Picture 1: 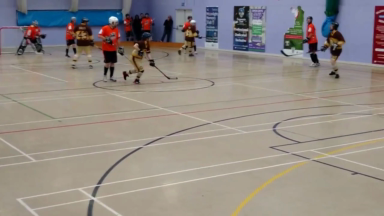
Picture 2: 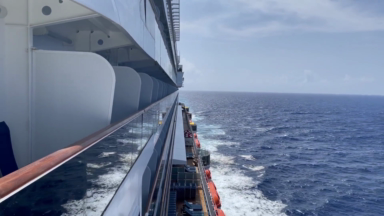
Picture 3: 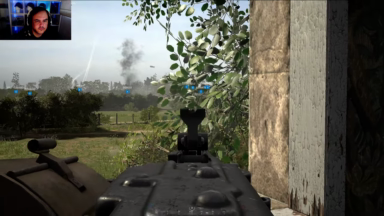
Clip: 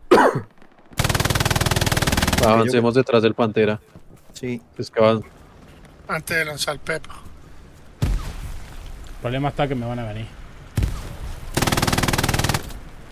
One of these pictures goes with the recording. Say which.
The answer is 3